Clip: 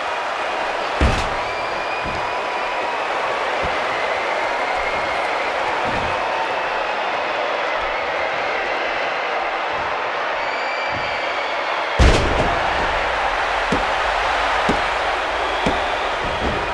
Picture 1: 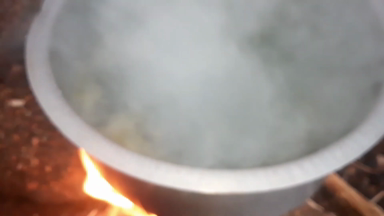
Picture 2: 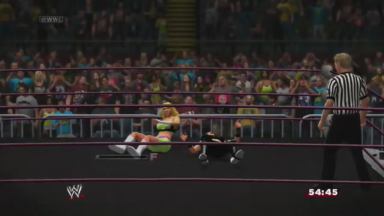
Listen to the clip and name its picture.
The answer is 2